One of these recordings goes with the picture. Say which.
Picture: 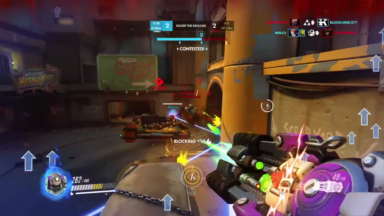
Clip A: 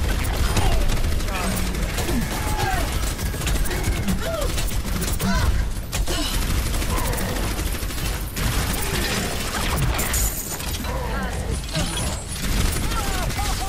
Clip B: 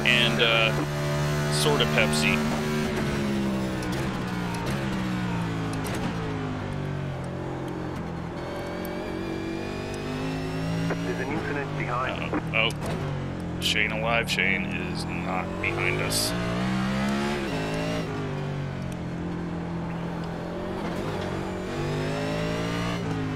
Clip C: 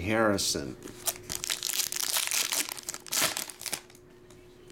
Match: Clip A